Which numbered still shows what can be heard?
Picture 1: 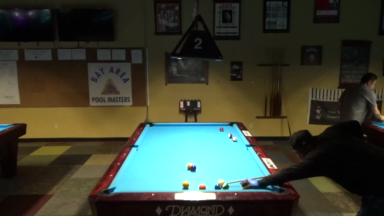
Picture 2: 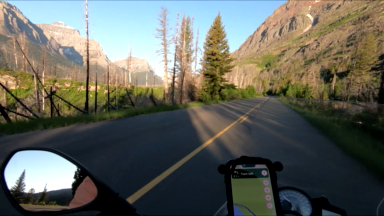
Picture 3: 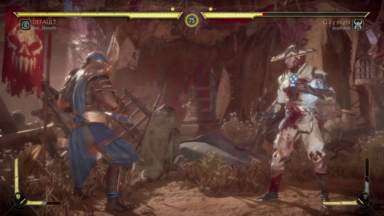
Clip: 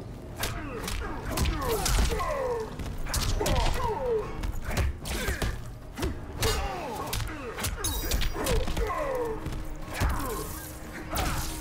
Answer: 3